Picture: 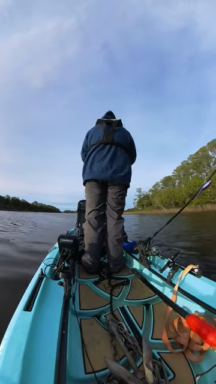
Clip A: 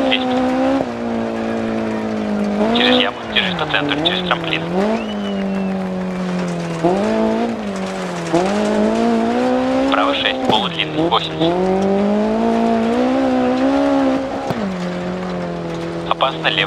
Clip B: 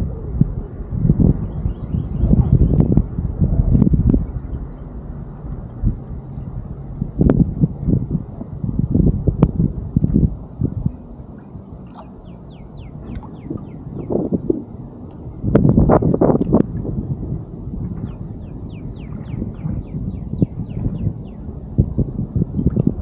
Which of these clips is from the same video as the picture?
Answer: B